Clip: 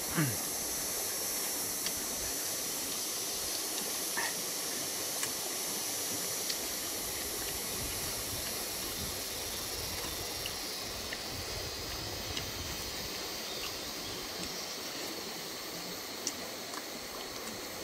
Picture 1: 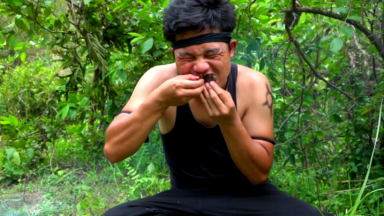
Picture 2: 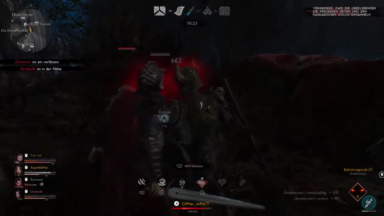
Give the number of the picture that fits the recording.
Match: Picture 1